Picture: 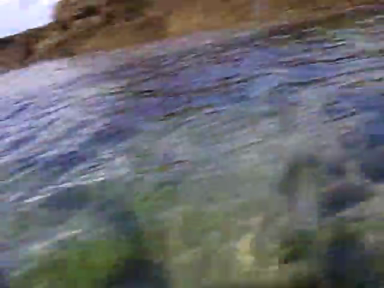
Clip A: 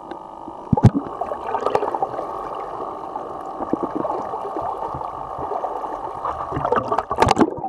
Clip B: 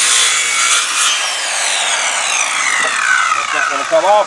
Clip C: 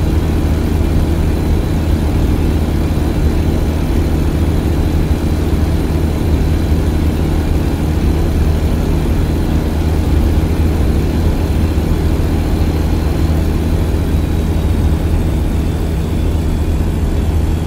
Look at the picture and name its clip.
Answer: A